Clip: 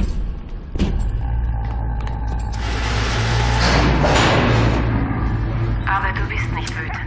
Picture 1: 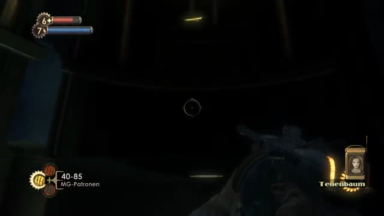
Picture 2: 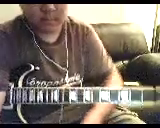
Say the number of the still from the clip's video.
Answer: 1